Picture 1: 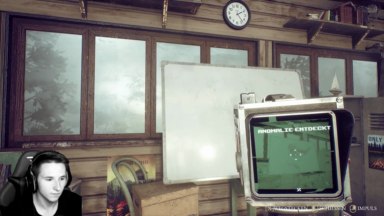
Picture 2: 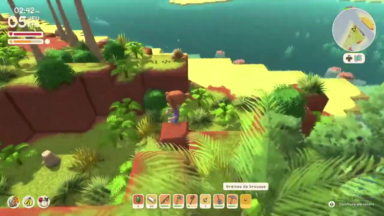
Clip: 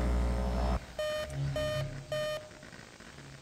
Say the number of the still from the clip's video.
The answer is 1